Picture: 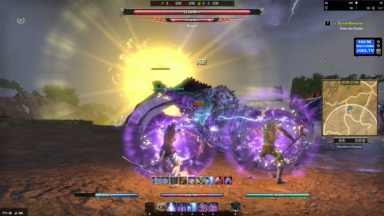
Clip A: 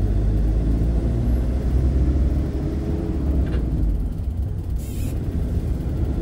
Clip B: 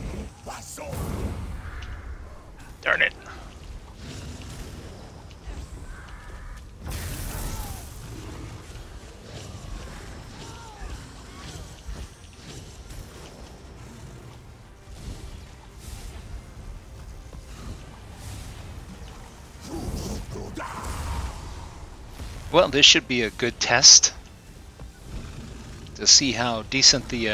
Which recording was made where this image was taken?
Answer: B